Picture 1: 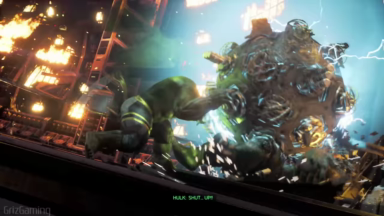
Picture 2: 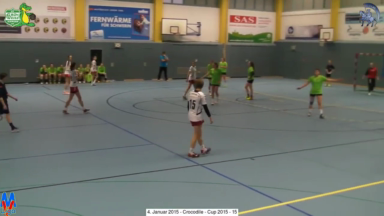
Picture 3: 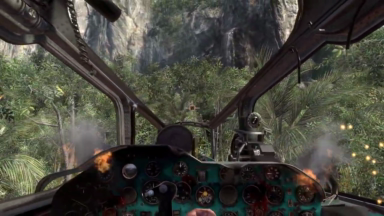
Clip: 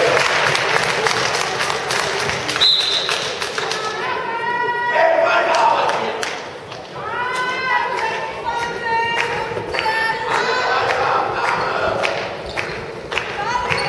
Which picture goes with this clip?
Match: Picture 2